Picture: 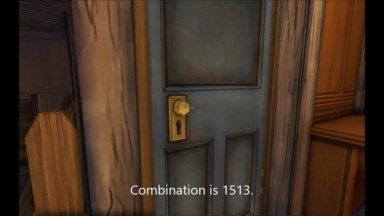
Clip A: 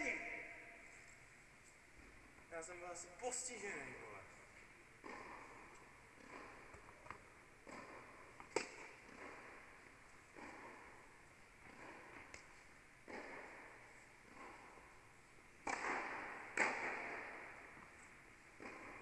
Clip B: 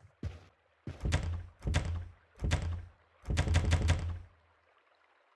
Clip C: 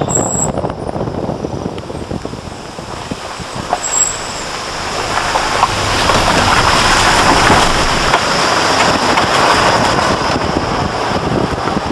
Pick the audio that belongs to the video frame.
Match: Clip B